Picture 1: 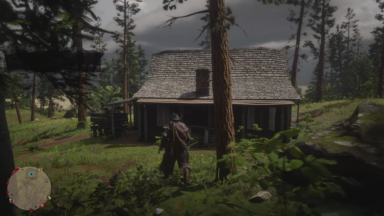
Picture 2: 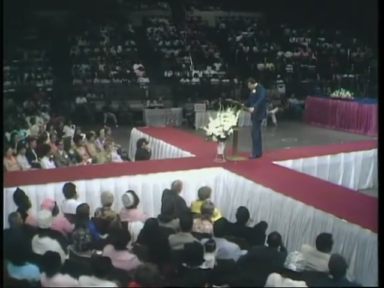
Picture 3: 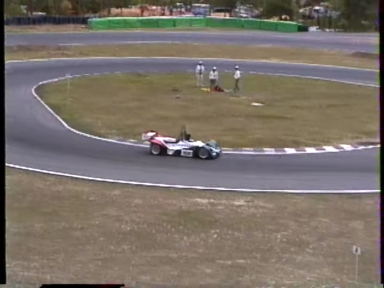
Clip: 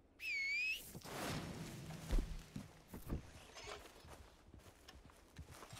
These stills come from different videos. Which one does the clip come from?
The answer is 1